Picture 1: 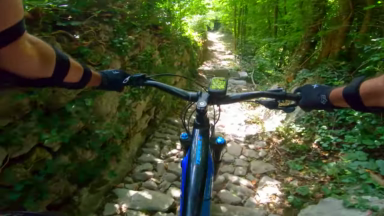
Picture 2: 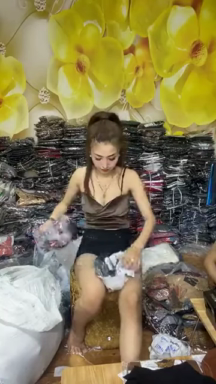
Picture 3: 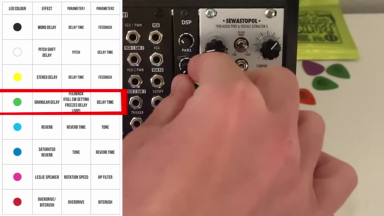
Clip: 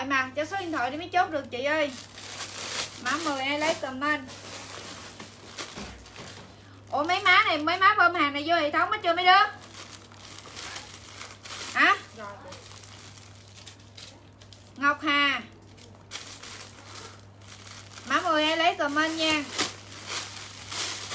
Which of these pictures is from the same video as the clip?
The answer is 2